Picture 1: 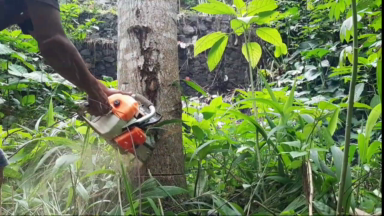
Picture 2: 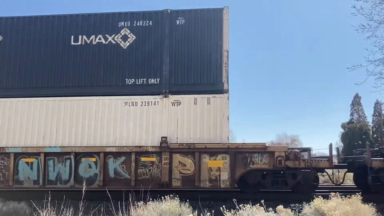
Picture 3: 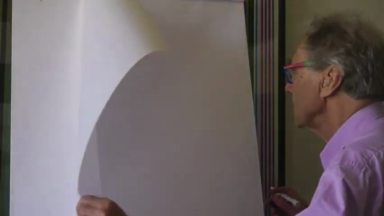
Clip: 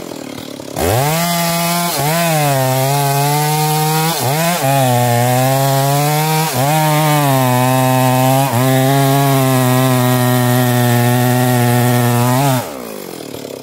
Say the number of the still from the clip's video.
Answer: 1